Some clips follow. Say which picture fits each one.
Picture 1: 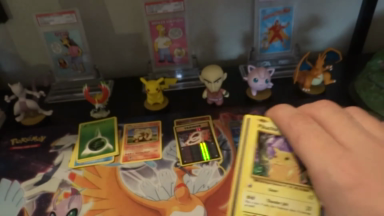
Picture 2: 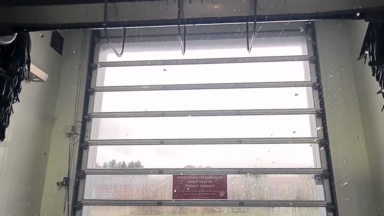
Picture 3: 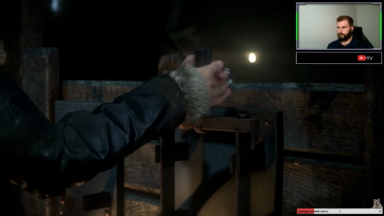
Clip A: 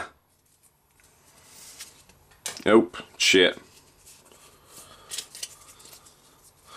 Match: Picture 1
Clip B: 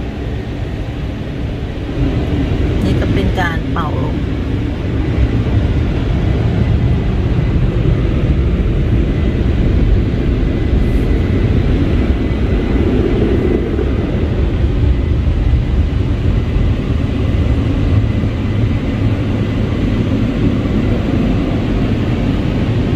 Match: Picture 2